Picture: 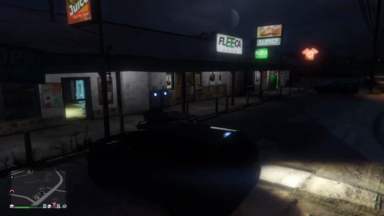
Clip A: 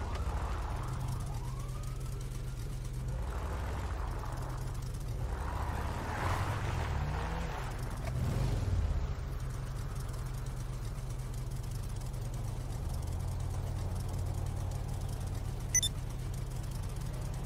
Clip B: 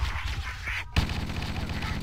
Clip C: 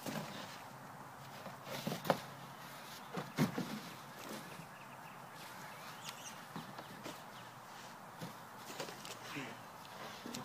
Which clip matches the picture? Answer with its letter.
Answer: A